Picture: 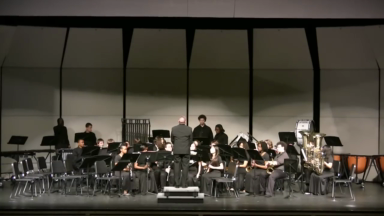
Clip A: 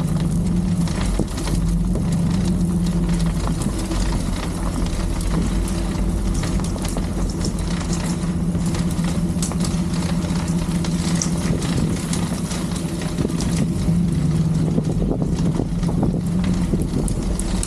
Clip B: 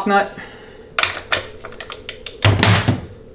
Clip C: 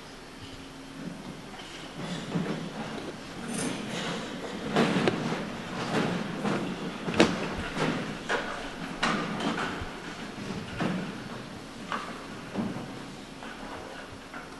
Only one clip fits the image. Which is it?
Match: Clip C